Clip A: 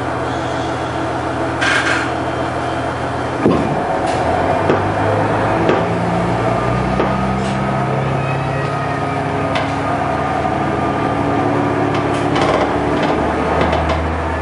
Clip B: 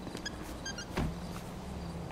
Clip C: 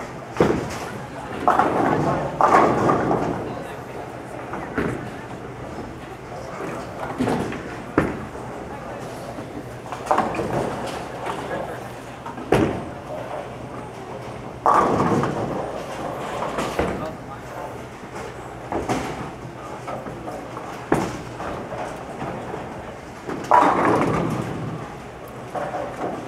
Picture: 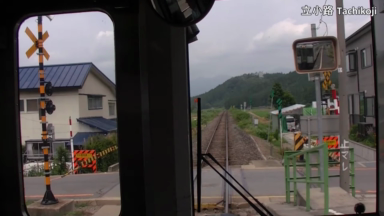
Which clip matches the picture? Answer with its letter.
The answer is A